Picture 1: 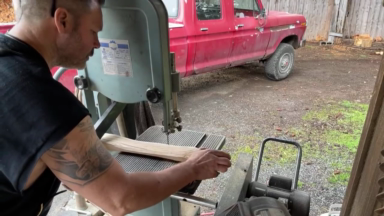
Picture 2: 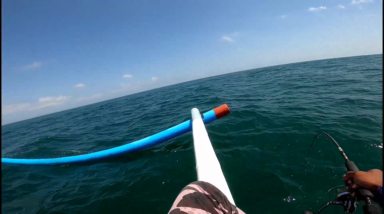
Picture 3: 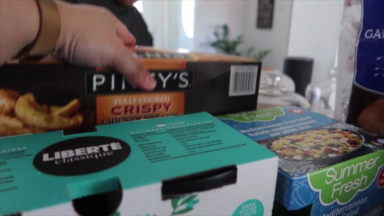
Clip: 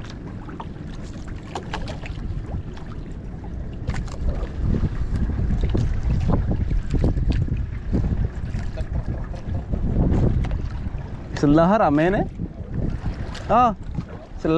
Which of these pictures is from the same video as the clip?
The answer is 2